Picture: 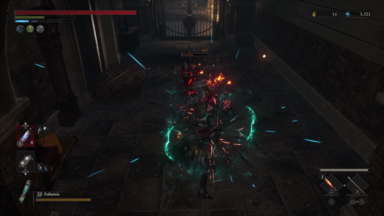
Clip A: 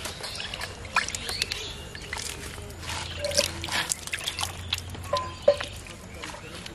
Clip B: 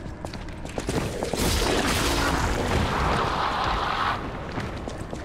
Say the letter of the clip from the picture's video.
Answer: B